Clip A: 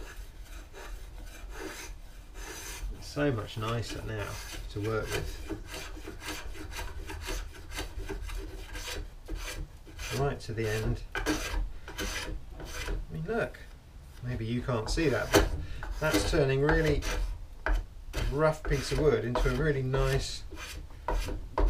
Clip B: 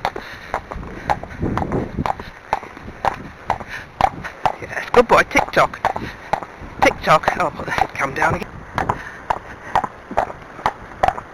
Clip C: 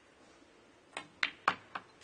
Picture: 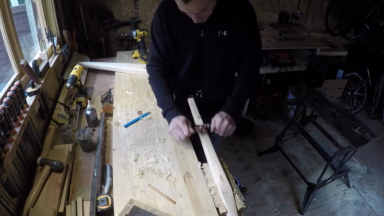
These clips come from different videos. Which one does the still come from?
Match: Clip A